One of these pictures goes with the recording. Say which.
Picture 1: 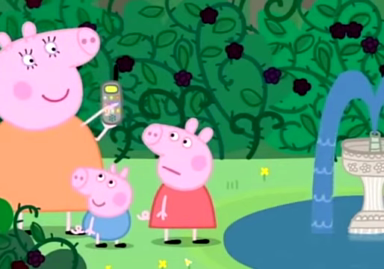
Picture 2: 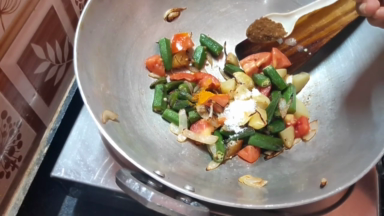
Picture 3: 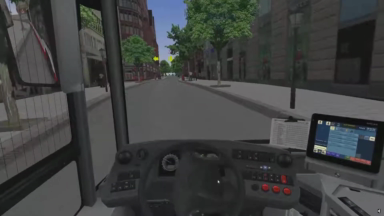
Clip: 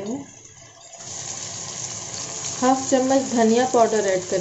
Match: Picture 2